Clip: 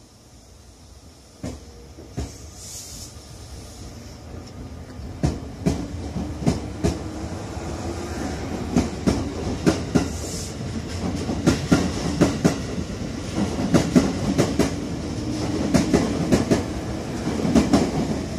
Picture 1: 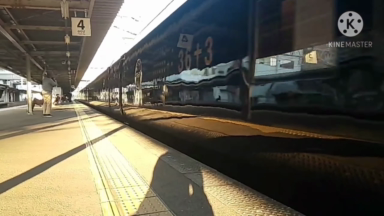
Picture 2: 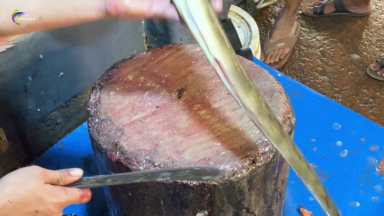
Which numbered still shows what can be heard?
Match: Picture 1